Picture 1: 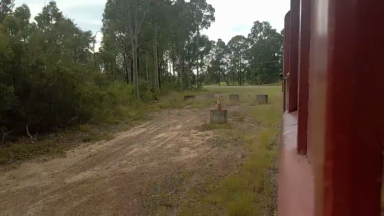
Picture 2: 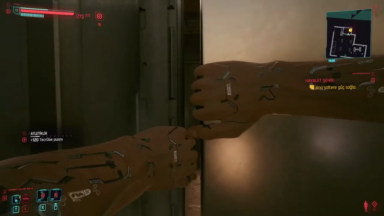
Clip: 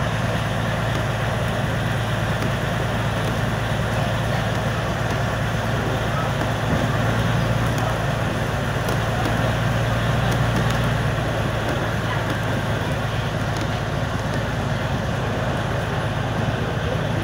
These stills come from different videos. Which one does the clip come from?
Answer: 1